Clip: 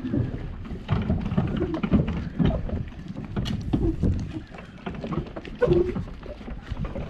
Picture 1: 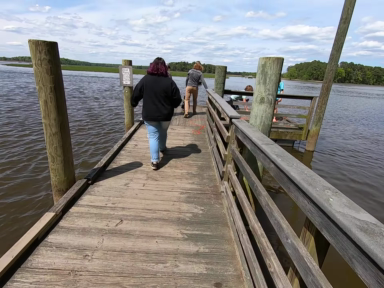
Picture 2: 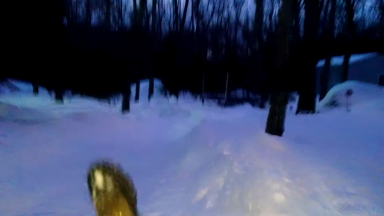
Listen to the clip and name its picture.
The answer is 1